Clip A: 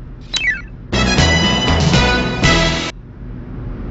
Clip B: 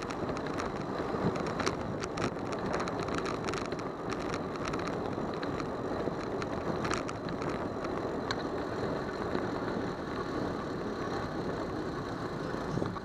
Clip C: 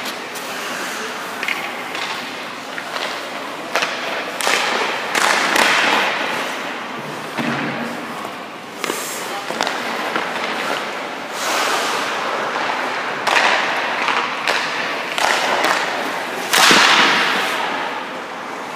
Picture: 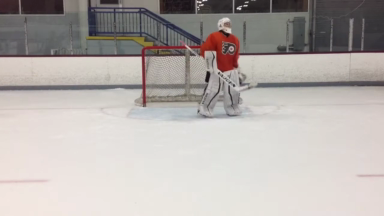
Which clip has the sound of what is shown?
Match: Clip C